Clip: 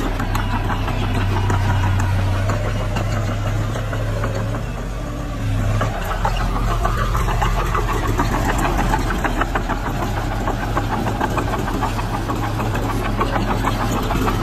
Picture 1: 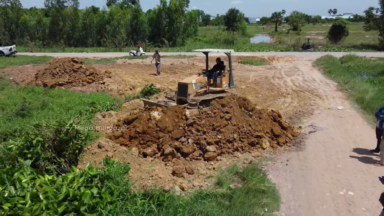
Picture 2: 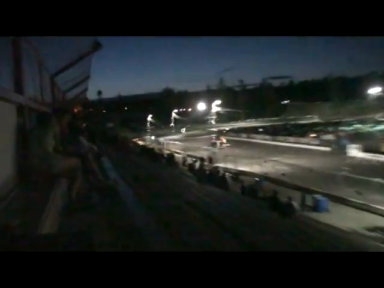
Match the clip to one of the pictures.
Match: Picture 1